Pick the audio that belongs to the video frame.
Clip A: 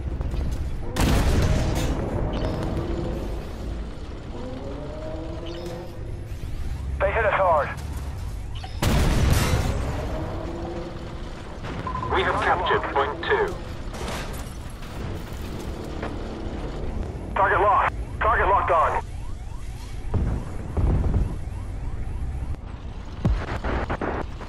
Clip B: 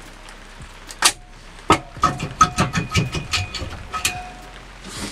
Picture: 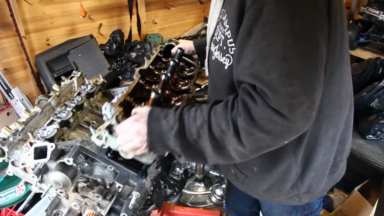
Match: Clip B